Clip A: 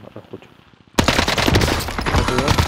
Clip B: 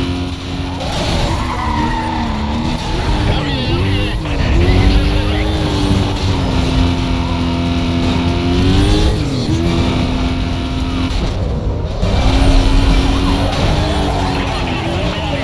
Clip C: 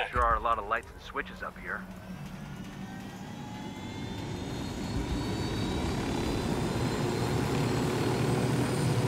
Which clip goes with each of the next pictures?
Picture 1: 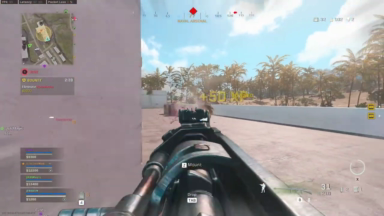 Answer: A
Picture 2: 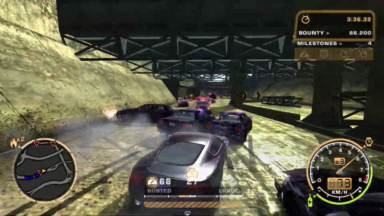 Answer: B